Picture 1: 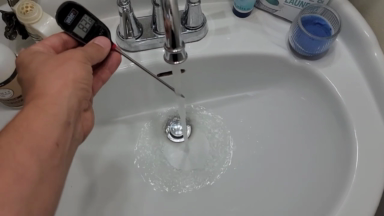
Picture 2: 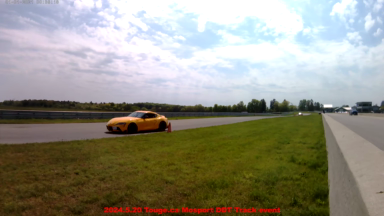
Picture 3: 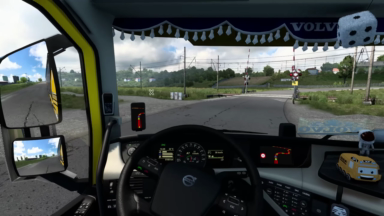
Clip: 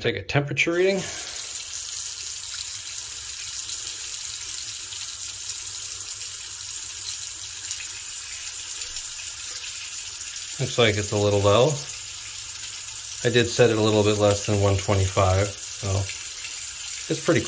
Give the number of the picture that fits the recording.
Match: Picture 1